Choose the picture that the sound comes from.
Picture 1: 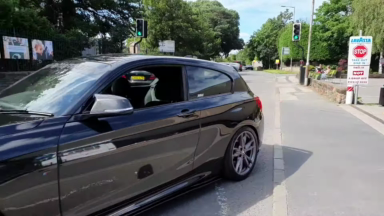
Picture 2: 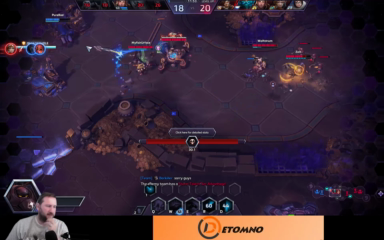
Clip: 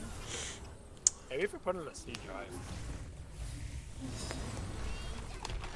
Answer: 2